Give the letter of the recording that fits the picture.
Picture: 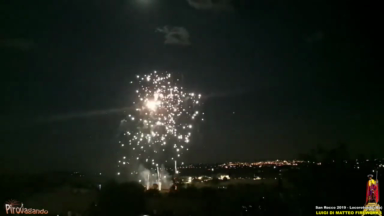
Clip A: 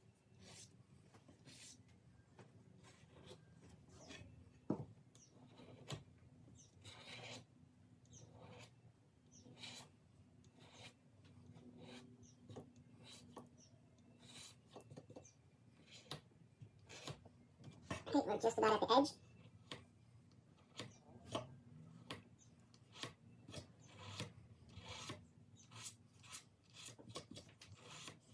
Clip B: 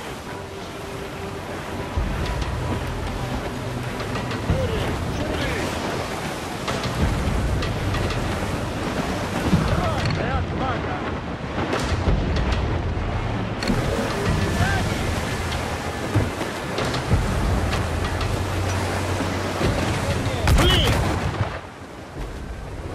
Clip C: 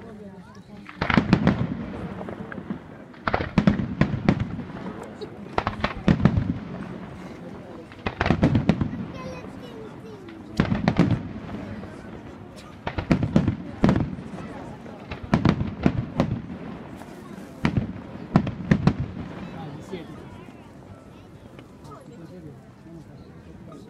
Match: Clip C